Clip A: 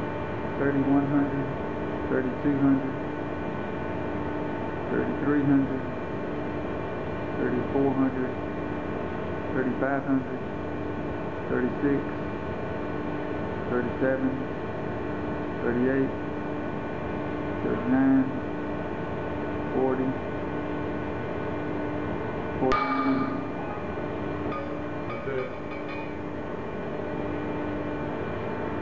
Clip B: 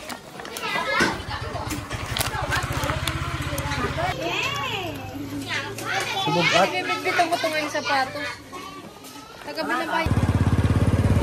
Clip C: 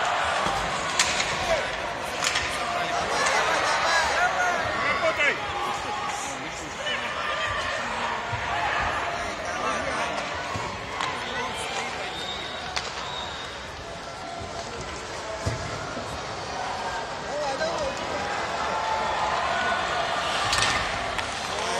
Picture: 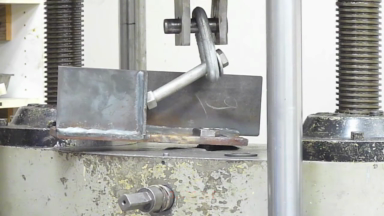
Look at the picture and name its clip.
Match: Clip A